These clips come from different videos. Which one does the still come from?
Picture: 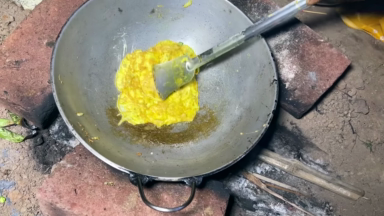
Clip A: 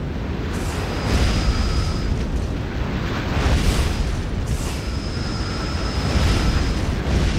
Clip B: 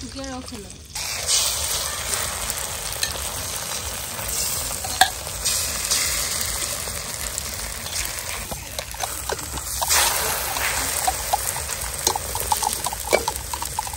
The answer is B